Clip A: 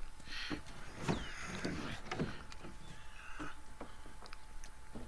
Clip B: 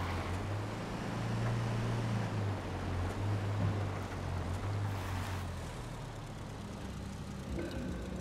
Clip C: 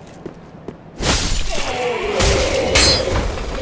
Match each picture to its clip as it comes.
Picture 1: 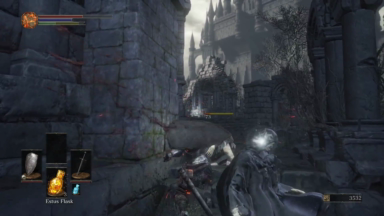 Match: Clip C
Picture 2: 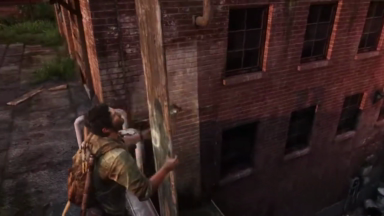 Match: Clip A